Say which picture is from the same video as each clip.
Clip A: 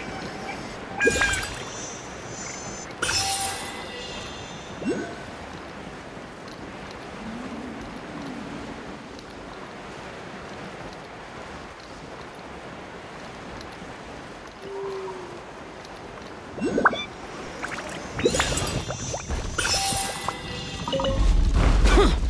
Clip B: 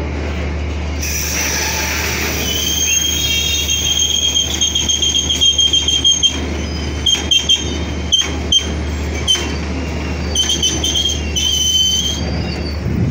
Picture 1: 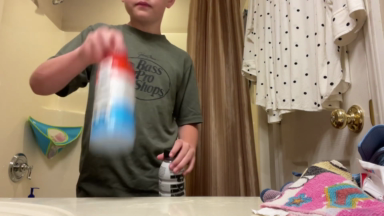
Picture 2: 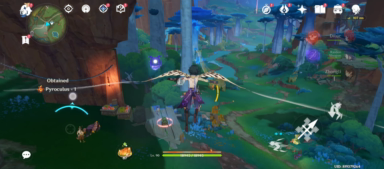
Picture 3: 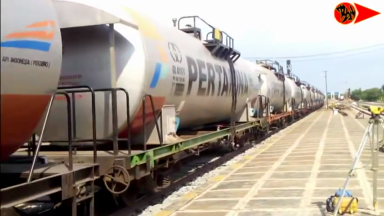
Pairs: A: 2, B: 3